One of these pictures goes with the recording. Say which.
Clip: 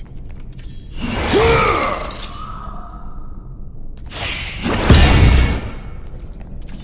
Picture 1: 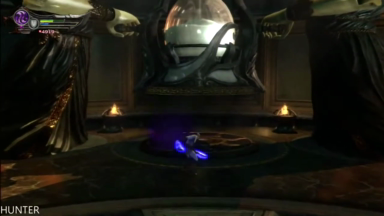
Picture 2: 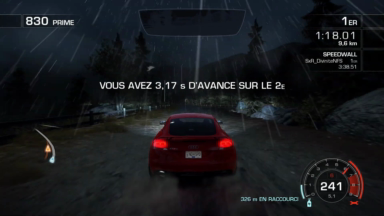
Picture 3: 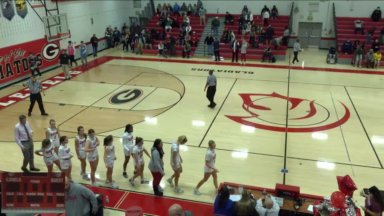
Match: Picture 1